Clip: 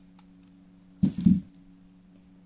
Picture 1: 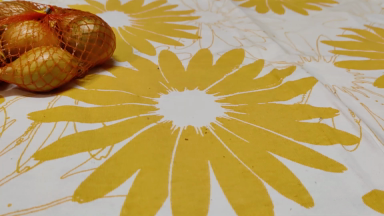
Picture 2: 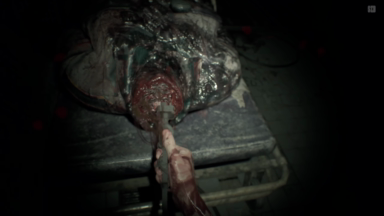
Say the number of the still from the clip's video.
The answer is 1